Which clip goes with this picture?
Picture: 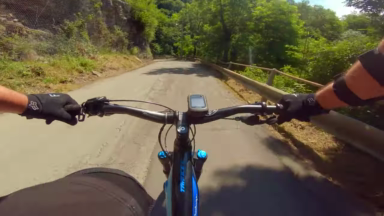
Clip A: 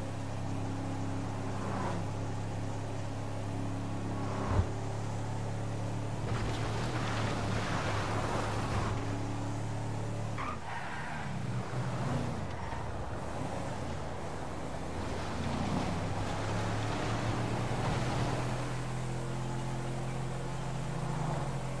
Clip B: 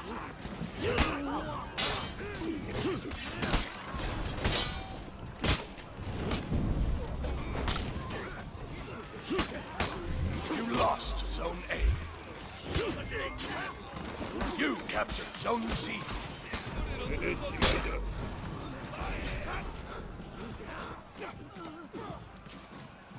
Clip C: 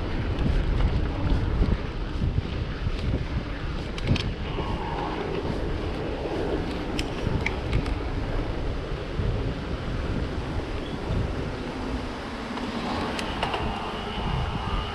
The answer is C